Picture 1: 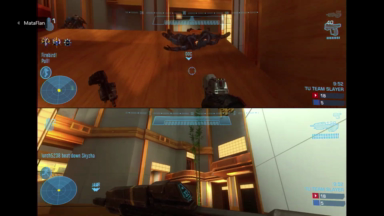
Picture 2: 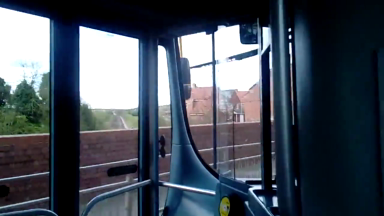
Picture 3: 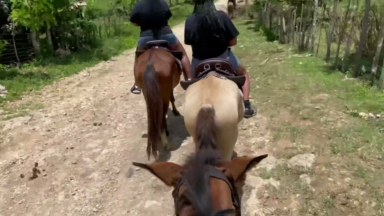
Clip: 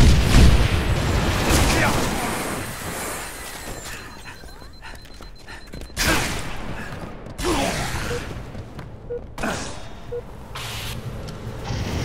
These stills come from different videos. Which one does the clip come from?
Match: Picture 1